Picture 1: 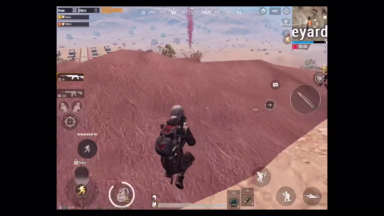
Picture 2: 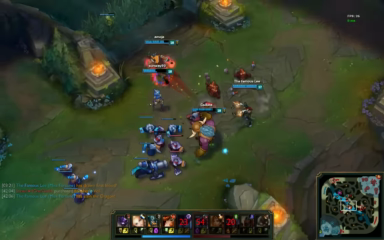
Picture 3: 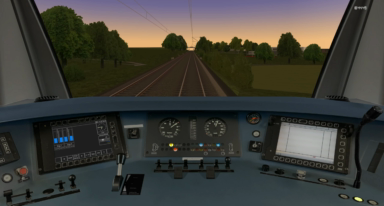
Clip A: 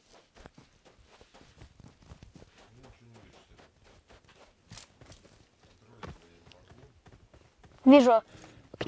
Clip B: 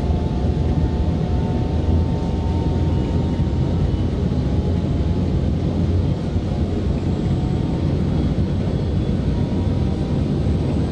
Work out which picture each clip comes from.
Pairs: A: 1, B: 3